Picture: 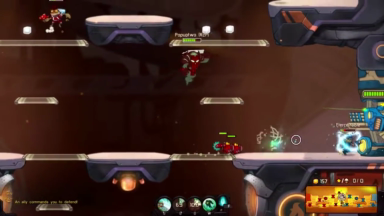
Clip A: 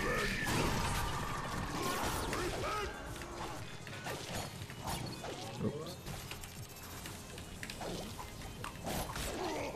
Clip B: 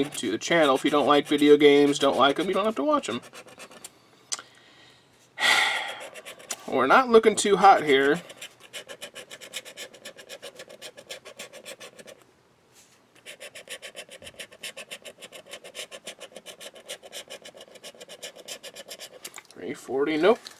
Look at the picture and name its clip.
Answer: A